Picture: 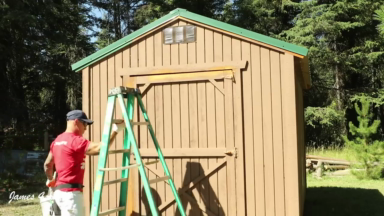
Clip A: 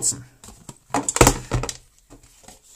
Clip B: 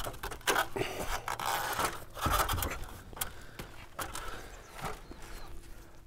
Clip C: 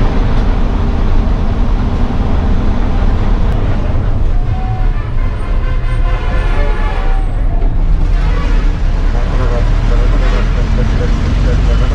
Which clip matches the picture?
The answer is B